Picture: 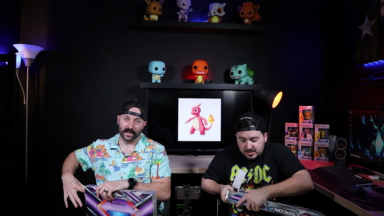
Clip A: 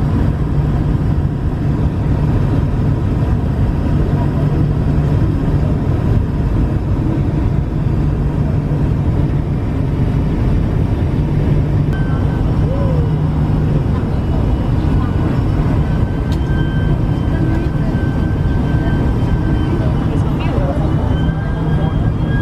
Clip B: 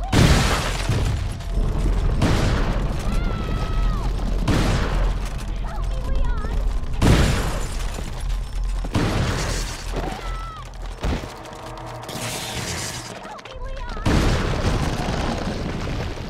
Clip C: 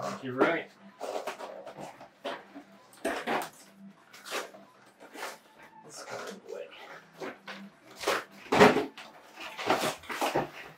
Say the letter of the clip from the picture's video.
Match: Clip C